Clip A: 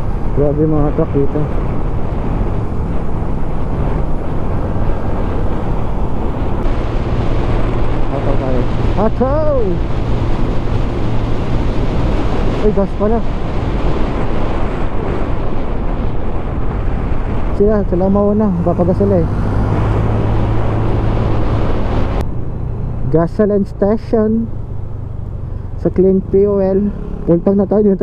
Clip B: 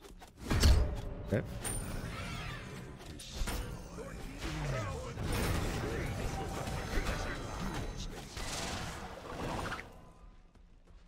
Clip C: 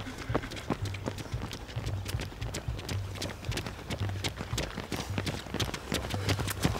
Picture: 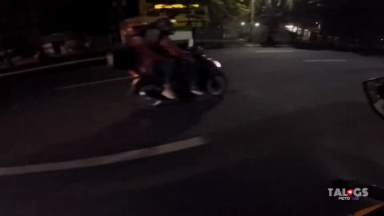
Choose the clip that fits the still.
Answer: A